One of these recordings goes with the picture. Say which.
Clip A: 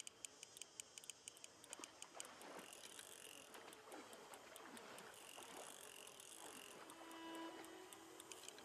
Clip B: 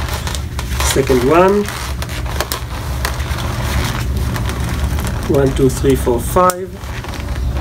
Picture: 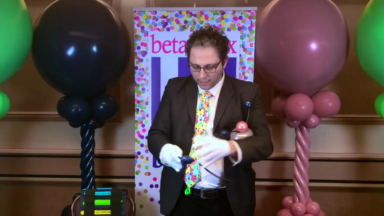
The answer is B